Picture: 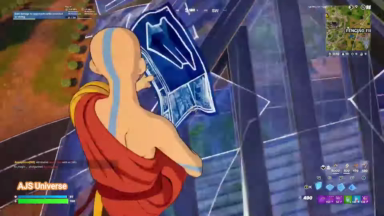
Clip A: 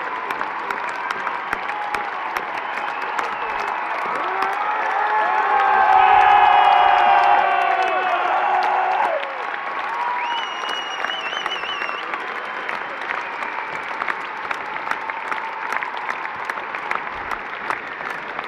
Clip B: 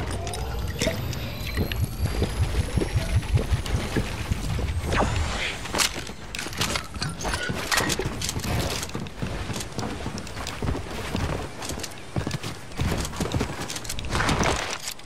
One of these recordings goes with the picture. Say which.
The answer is B